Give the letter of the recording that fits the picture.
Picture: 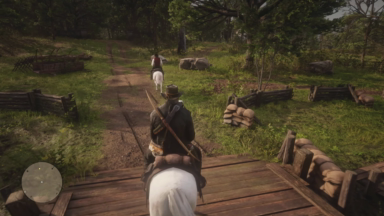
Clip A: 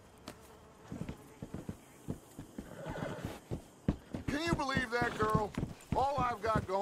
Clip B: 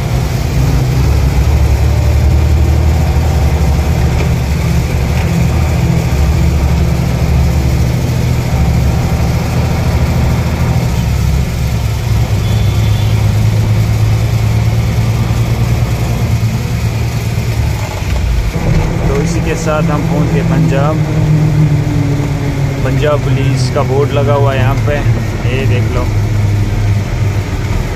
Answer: A